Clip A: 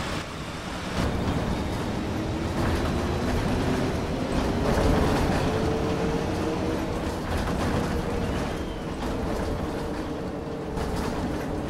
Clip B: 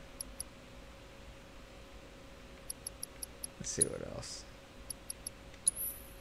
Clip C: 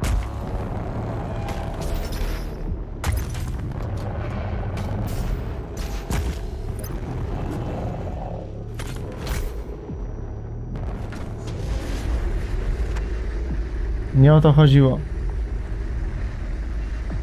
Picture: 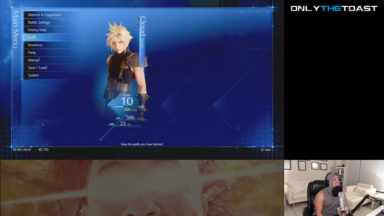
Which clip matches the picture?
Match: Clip B